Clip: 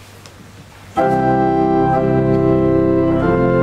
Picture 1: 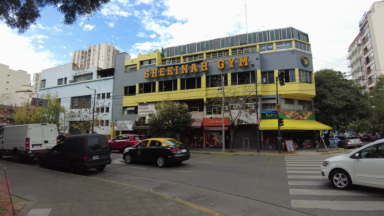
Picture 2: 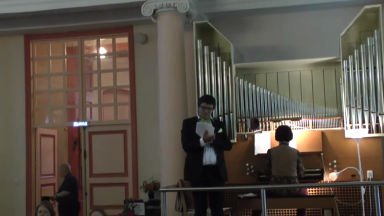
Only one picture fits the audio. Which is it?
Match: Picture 2